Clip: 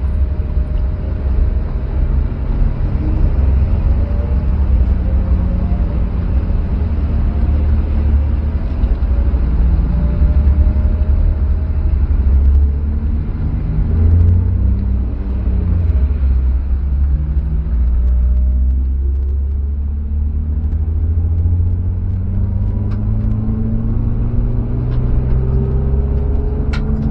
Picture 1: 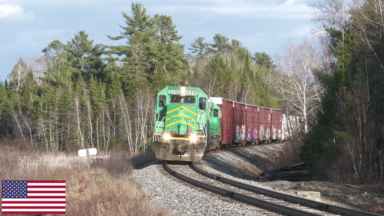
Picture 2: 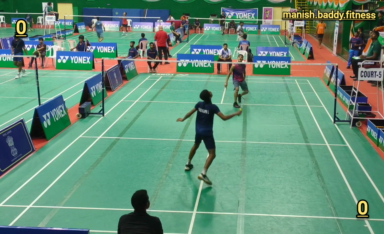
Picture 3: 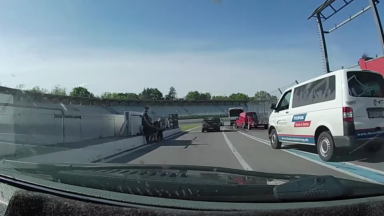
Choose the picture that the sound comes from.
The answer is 3